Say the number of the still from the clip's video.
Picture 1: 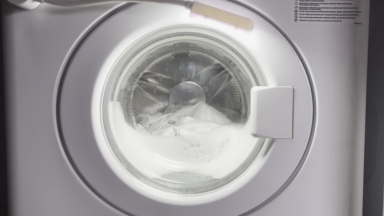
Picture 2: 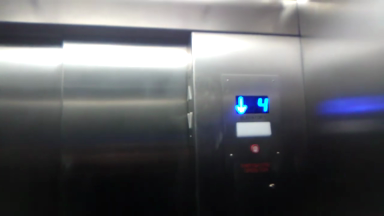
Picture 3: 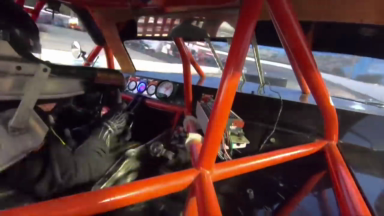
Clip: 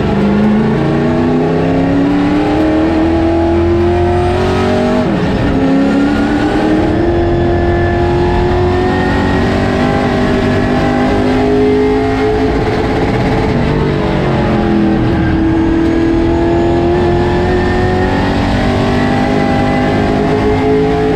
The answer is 3